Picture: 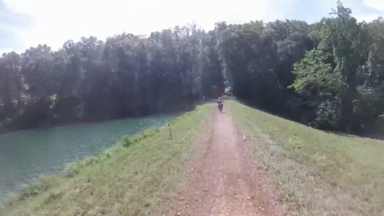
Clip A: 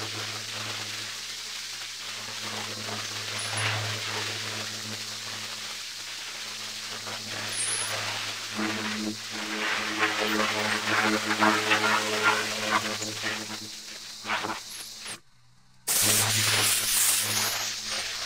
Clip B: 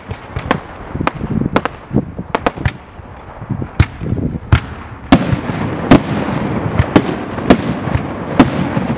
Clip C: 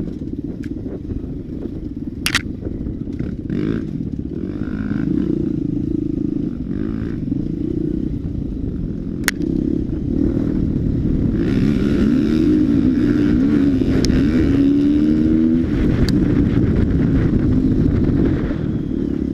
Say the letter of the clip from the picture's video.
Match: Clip C